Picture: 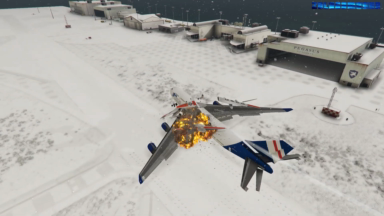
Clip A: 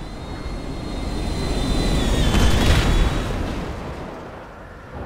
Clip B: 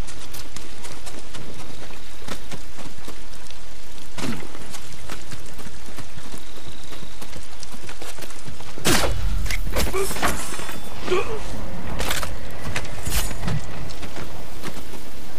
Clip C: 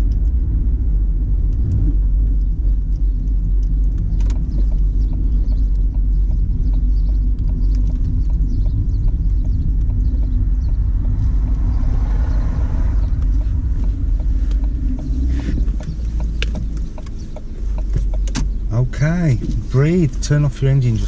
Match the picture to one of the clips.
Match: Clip A